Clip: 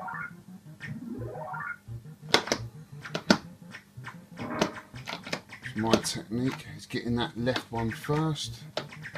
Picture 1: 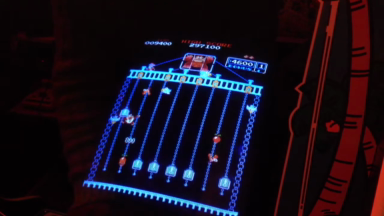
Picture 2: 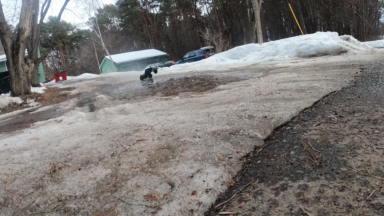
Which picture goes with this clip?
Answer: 1